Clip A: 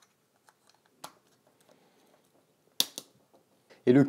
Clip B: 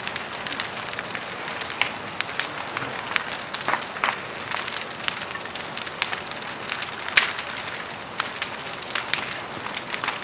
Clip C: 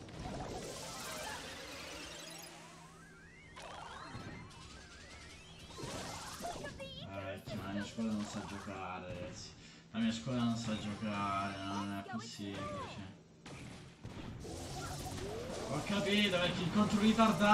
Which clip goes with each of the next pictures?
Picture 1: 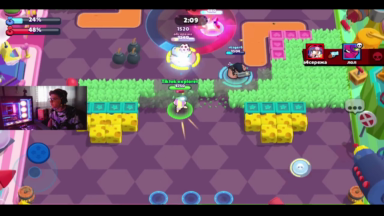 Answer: C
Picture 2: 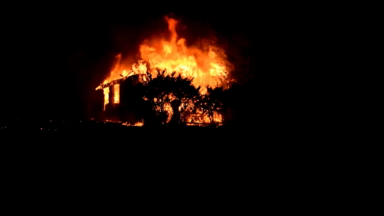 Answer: B